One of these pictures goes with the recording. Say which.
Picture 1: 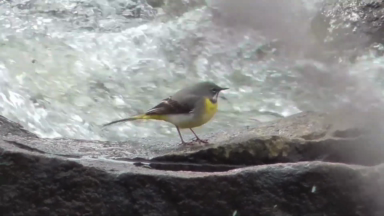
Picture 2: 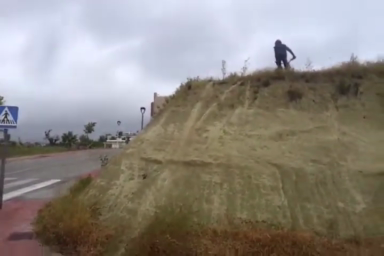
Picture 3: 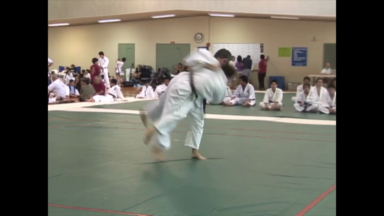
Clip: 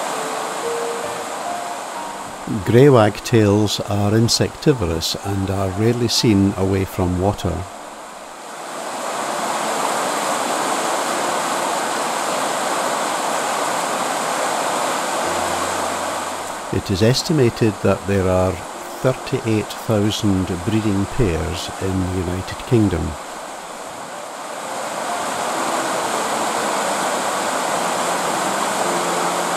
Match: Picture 1